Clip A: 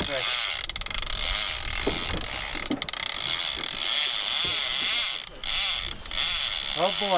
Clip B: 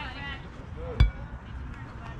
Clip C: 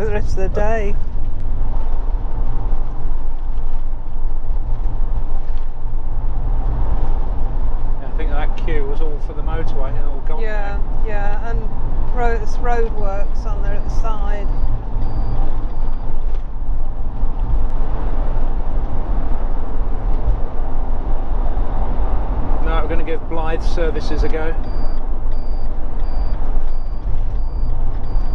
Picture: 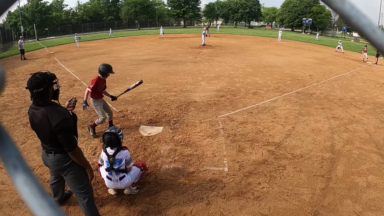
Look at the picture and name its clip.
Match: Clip B